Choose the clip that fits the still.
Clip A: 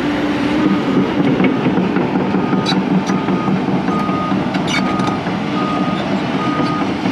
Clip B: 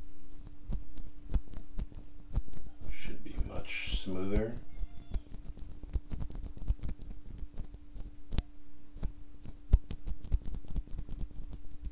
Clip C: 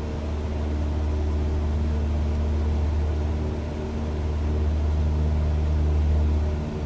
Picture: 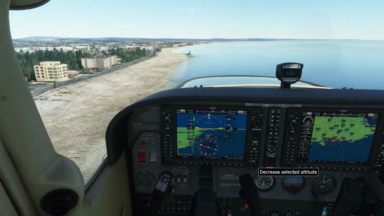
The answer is C